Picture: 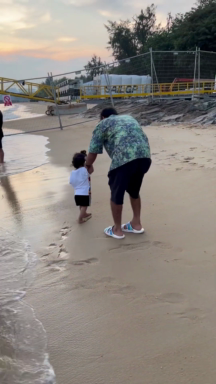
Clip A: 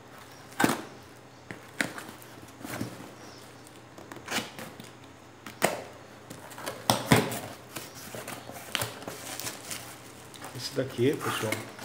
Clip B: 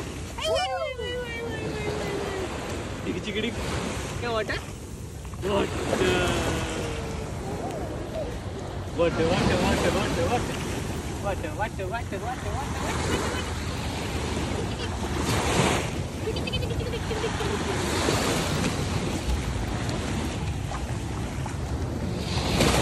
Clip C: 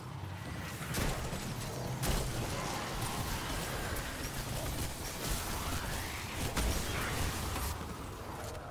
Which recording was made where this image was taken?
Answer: B